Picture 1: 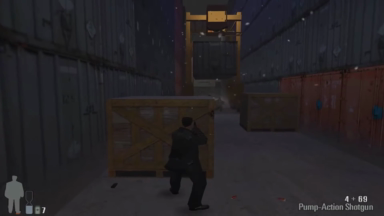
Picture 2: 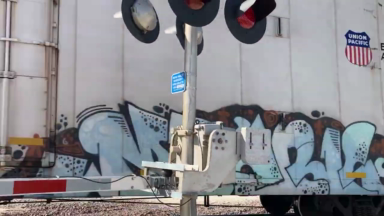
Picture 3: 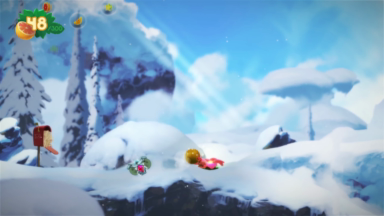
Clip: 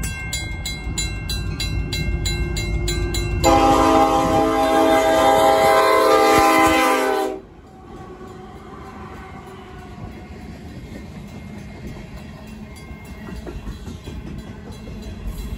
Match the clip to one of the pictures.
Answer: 2